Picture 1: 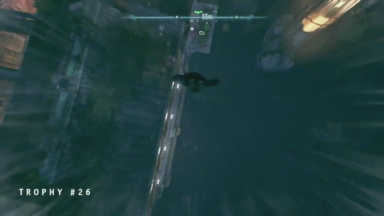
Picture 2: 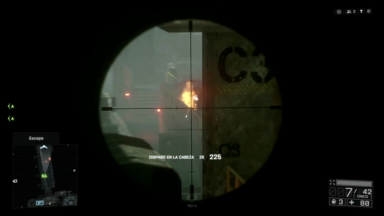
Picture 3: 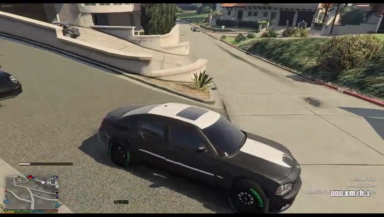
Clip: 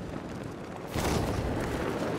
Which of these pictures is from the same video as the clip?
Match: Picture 1